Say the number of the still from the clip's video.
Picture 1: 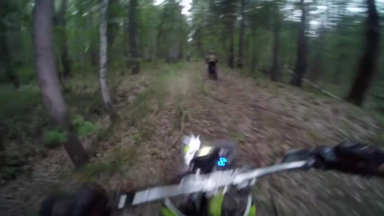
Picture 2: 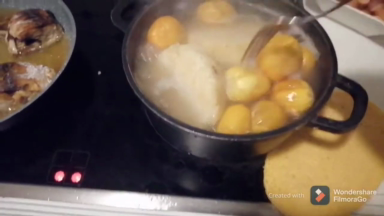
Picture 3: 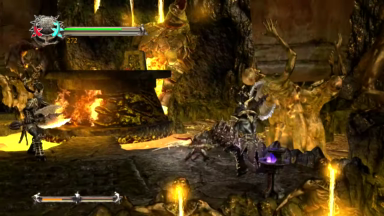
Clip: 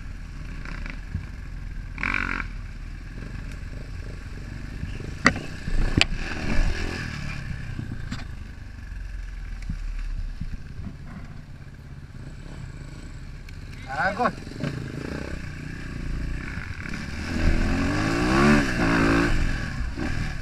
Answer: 1